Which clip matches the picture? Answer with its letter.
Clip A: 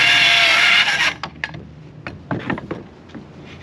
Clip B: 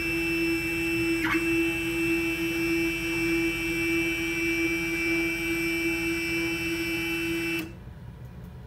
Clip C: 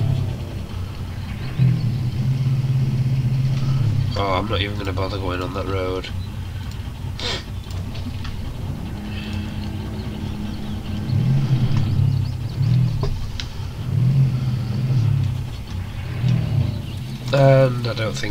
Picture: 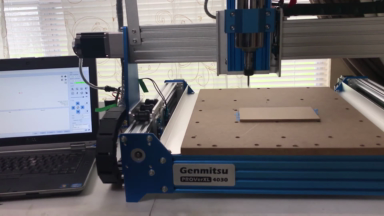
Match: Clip B